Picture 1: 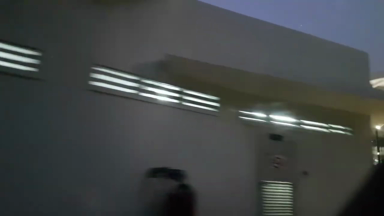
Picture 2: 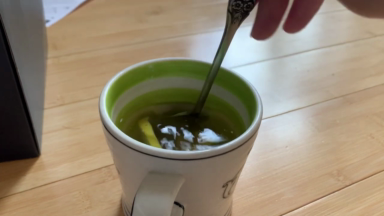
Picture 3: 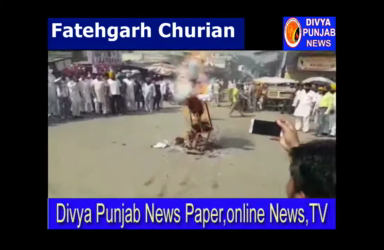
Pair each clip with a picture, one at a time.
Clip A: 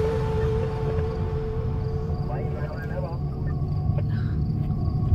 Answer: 1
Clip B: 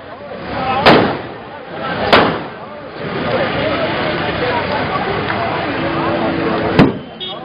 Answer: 3